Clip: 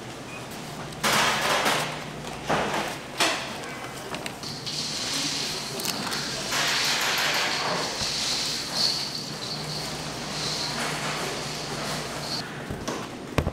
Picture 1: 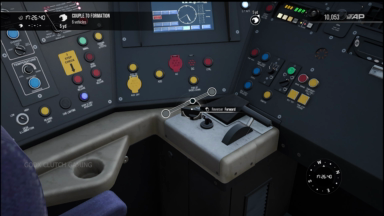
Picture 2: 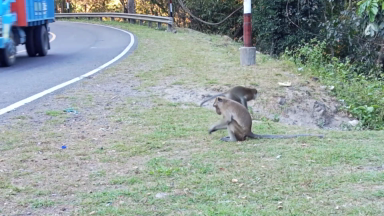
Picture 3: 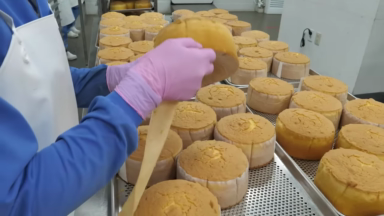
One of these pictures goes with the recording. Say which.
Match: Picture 3